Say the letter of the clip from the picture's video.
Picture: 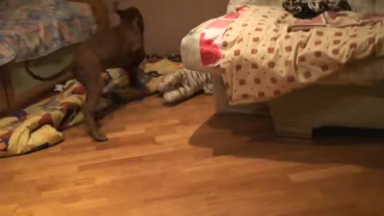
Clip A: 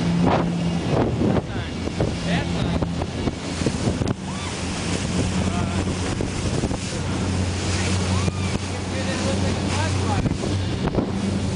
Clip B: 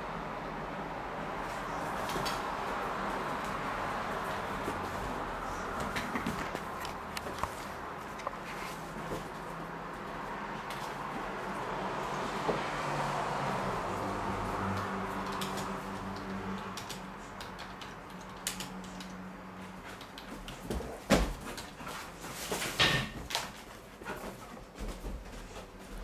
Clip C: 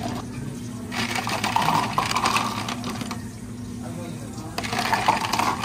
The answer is B